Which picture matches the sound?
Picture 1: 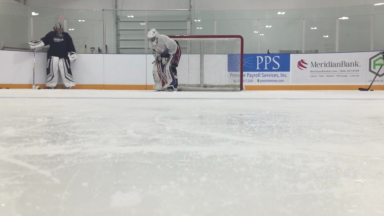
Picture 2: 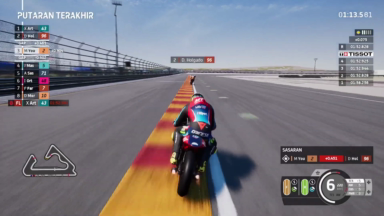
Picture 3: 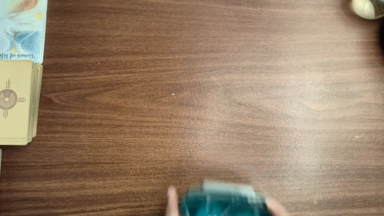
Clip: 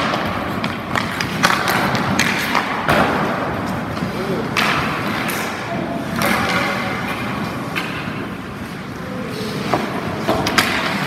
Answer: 1